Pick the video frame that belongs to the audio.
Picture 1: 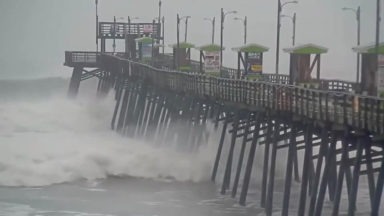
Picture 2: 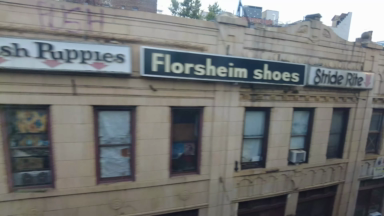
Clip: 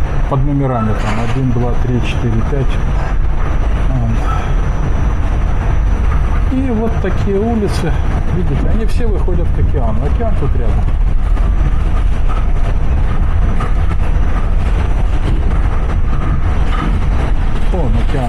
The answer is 2